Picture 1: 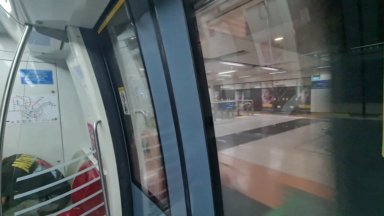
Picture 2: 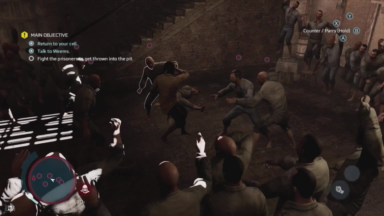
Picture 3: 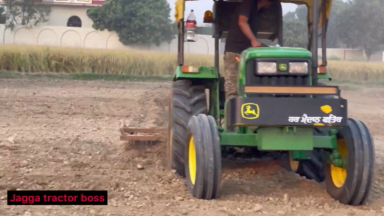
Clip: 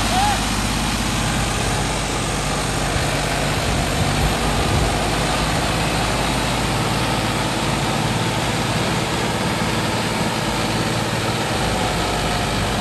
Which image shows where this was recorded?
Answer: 3